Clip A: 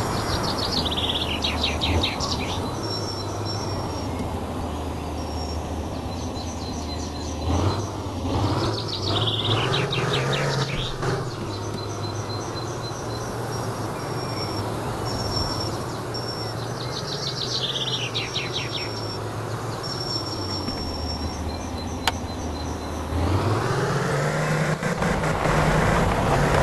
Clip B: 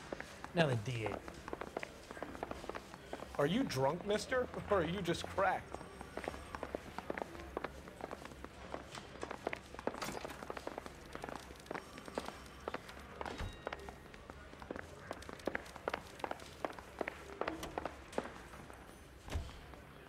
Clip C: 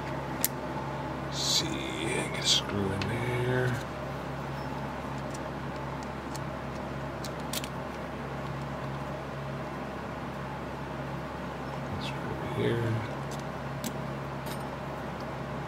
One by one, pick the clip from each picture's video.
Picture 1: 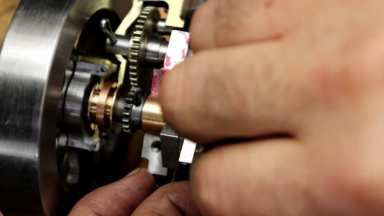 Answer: C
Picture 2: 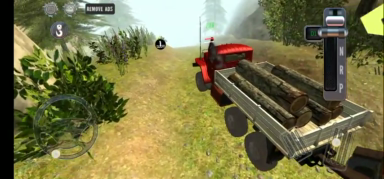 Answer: A